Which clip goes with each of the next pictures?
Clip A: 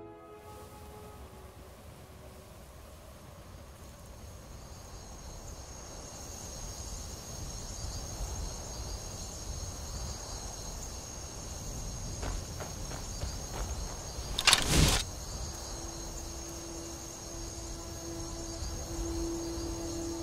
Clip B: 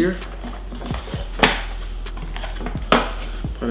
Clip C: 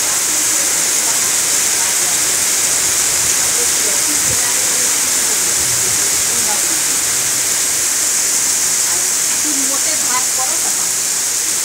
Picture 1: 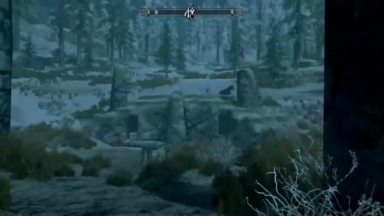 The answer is A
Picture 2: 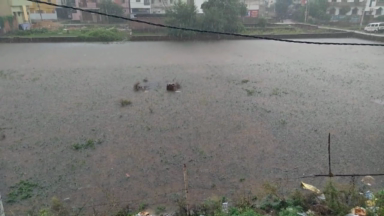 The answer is C